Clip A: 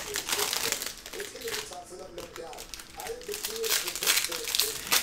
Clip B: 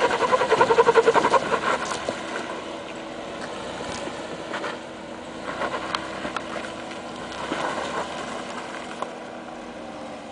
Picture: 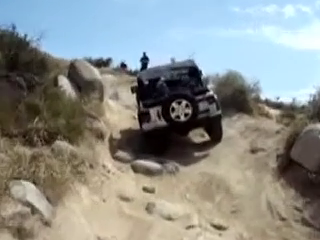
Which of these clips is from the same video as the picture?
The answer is B